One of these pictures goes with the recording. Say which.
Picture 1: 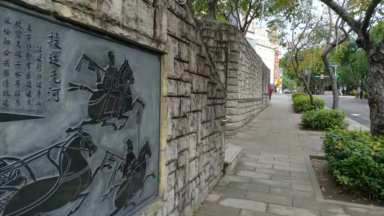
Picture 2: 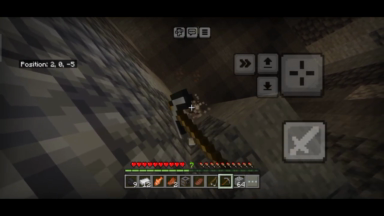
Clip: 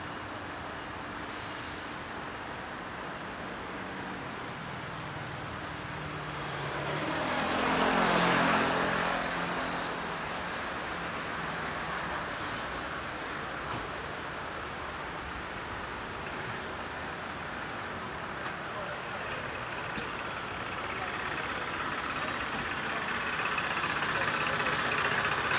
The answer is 1